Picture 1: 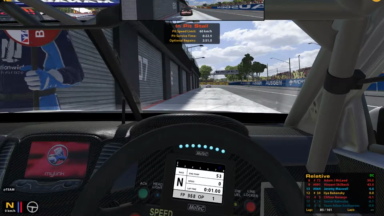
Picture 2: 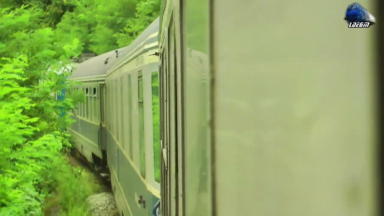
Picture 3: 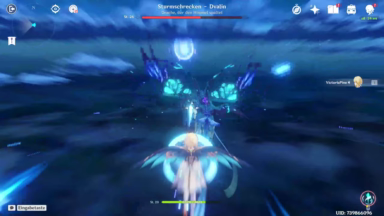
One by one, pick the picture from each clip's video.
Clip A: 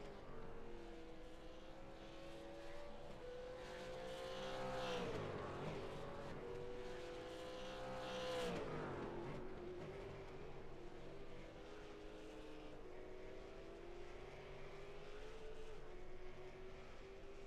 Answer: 1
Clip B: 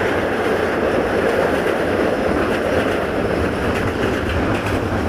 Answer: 2